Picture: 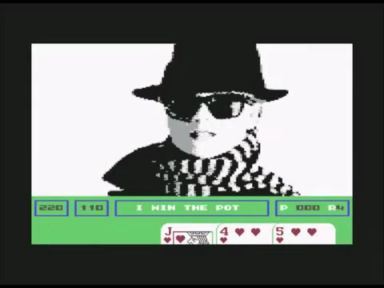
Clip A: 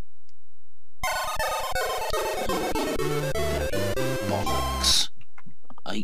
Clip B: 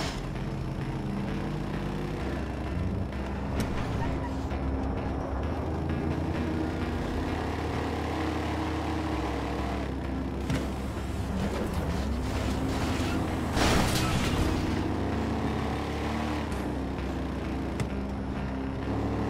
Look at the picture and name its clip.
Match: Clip A